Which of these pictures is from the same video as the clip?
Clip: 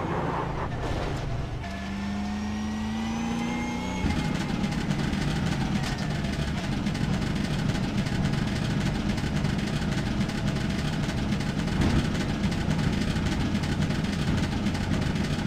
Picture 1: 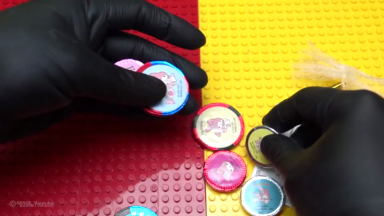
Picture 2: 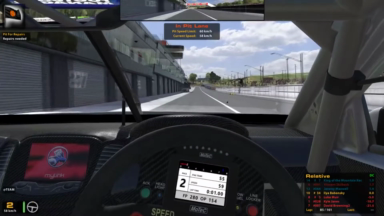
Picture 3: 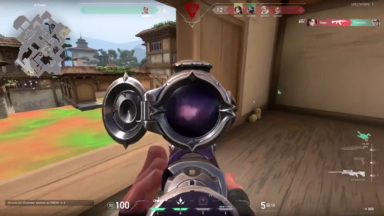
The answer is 2